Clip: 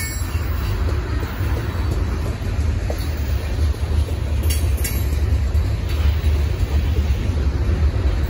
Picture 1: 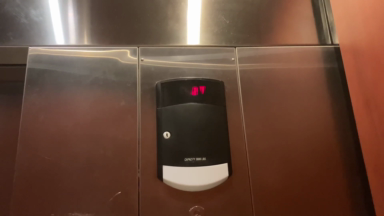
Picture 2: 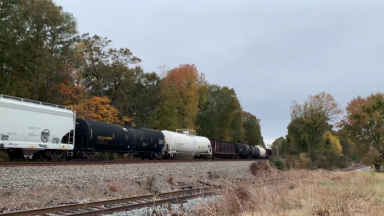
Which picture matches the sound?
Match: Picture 2